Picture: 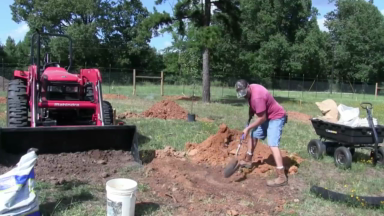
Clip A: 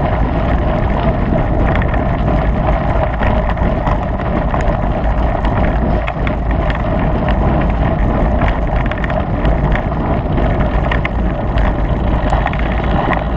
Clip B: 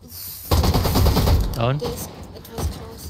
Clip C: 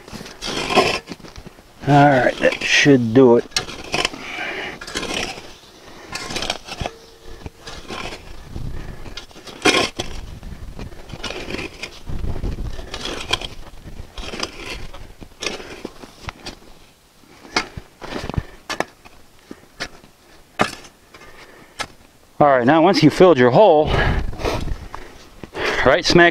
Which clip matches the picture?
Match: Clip C